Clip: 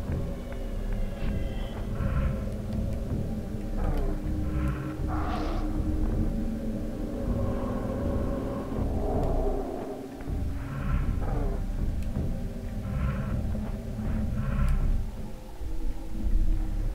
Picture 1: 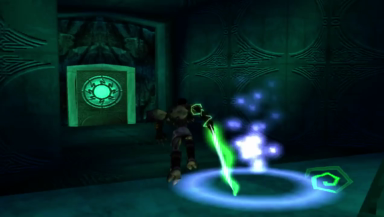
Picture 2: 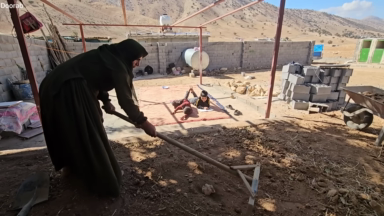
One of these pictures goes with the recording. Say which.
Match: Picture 1